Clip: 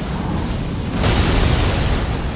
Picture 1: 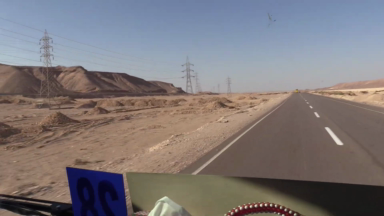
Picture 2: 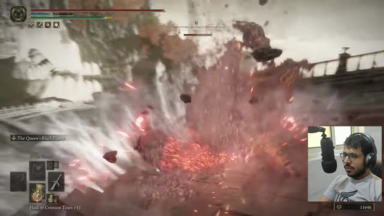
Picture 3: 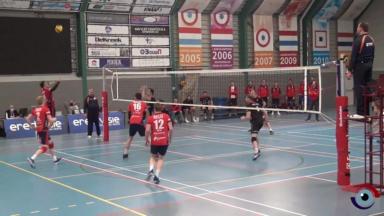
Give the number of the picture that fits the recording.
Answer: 2